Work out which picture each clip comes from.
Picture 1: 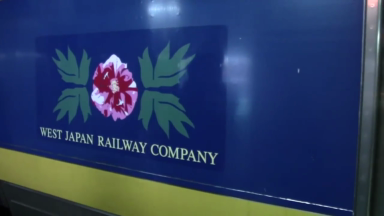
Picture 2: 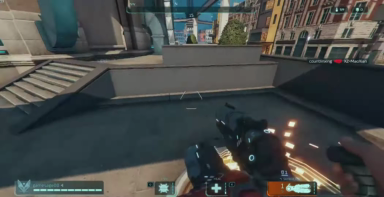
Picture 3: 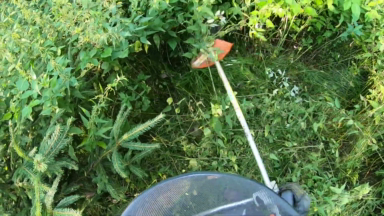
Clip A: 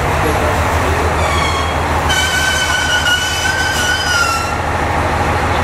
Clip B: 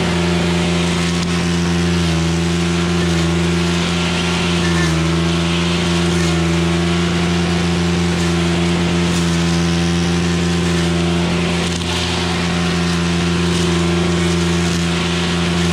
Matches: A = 1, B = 3